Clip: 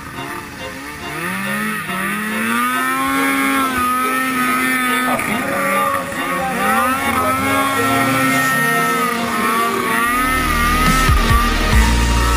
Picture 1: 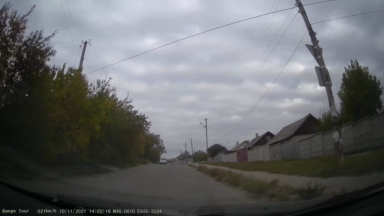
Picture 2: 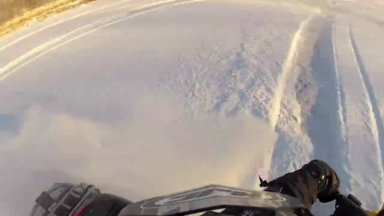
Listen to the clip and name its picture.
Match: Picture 2